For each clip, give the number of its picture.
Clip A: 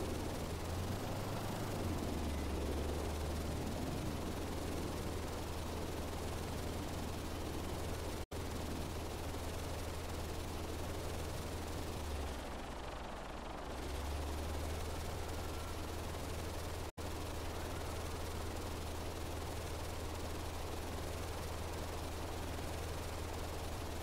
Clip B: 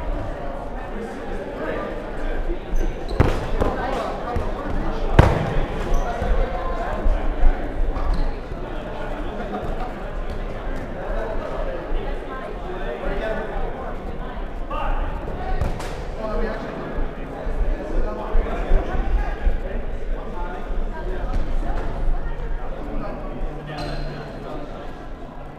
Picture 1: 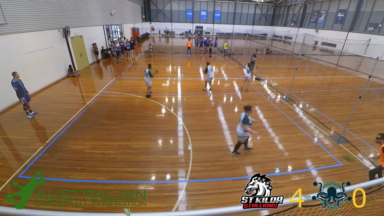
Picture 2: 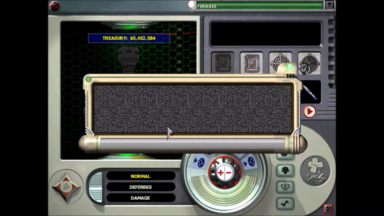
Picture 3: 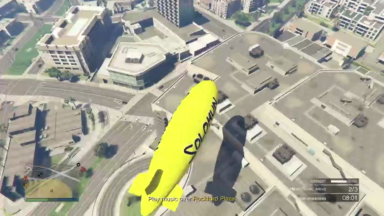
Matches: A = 3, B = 1